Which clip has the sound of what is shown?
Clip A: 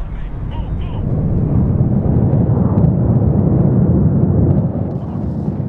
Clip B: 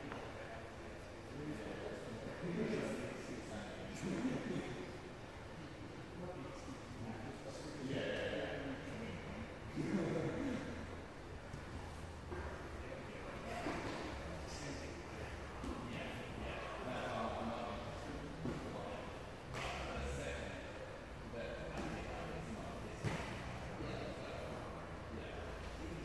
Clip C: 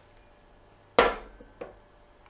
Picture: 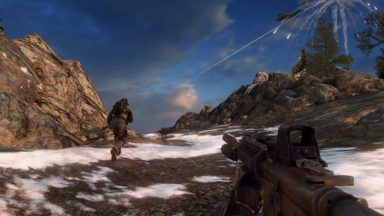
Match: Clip A